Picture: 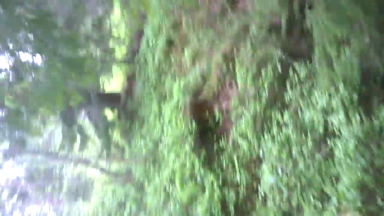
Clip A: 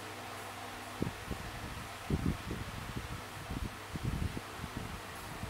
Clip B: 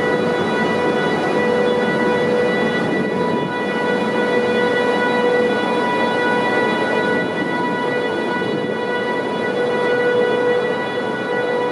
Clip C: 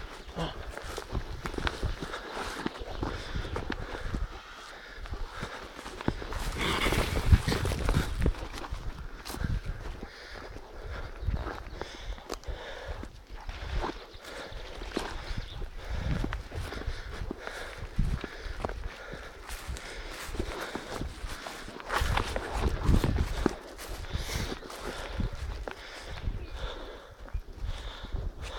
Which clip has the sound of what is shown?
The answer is C